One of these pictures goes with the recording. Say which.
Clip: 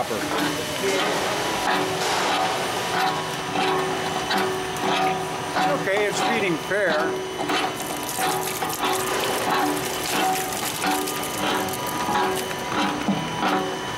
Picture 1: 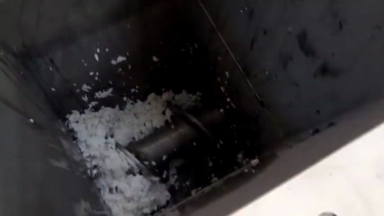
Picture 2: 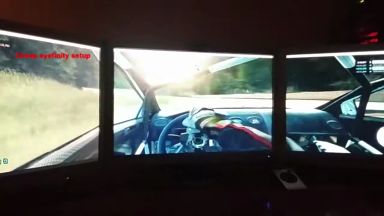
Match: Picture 1